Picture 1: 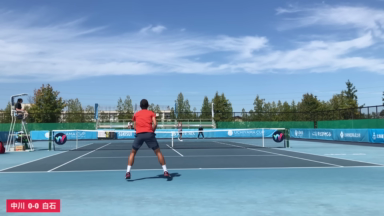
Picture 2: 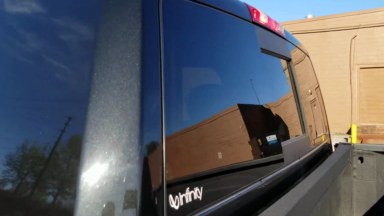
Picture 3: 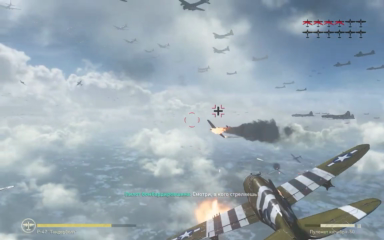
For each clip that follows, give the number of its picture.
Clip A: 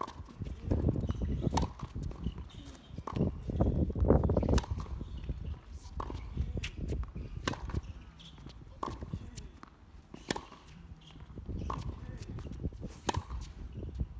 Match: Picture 1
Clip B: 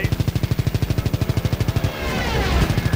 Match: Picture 3